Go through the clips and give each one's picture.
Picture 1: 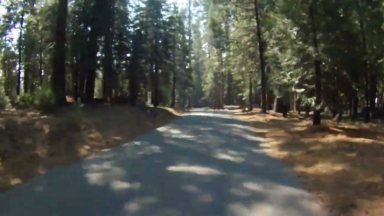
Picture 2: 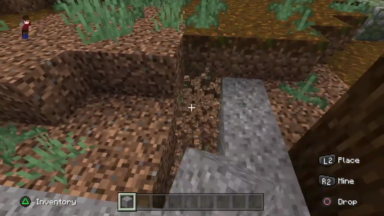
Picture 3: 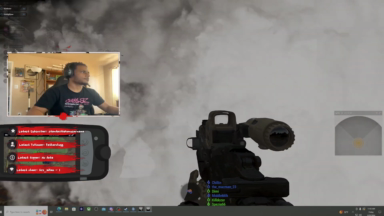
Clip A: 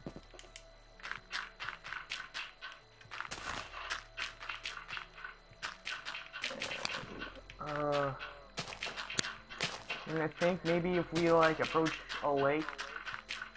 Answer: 2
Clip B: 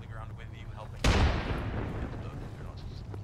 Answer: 3